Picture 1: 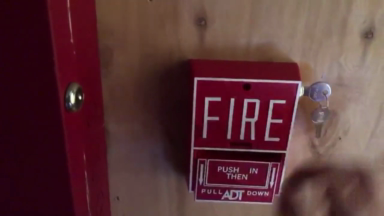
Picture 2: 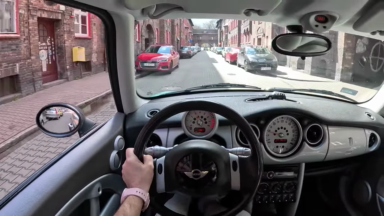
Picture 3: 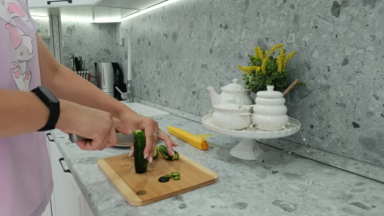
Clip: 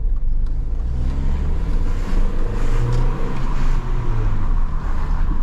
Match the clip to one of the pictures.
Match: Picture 2